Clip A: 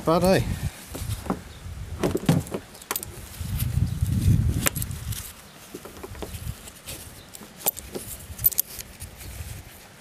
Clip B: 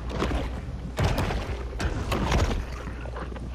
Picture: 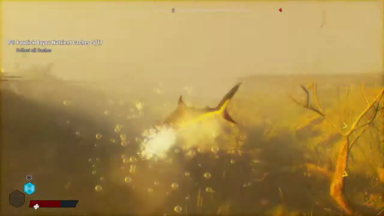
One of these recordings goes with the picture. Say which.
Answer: B